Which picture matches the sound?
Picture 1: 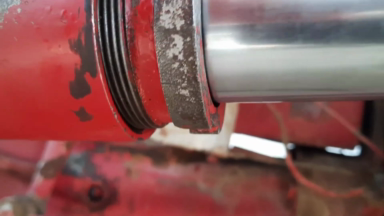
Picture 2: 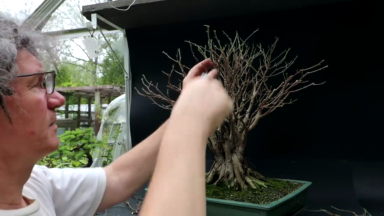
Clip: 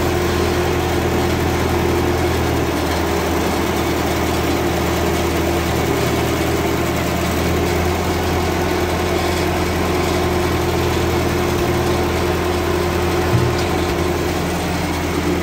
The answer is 1